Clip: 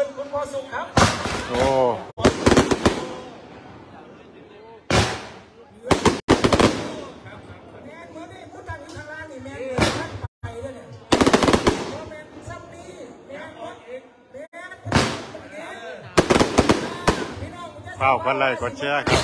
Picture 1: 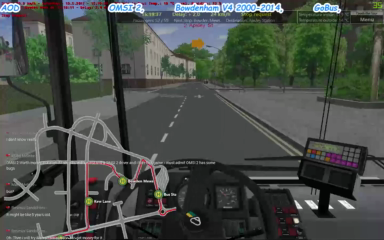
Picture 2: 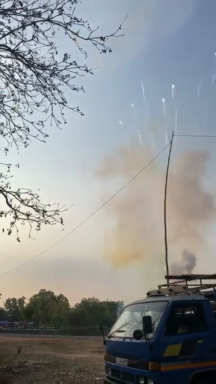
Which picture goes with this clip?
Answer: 2